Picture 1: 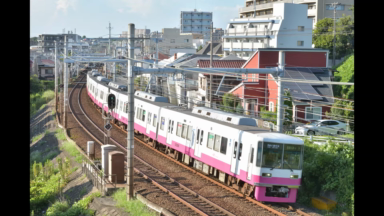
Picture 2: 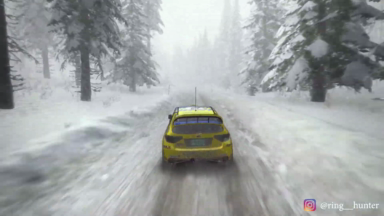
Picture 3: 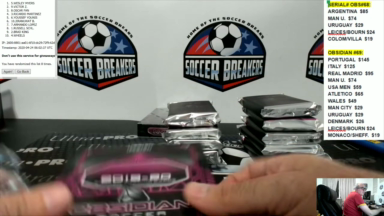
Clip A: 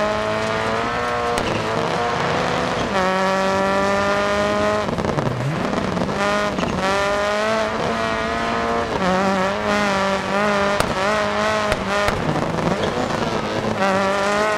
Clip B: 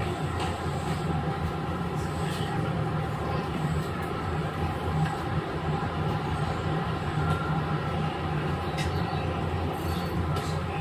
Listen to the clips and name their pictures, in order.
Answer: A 2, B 1